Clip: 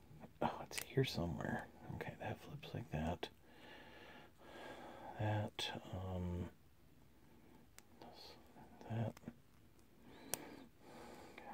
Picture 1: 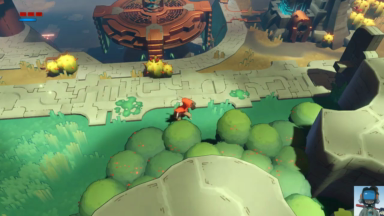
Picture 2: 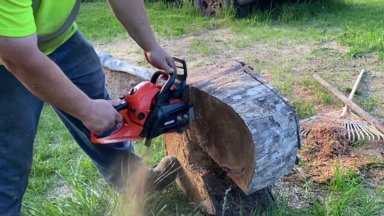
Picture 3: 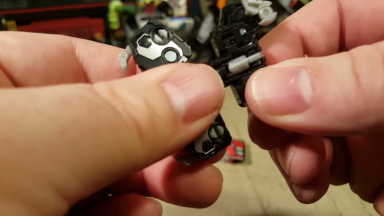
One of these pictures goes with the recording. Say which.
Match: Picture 3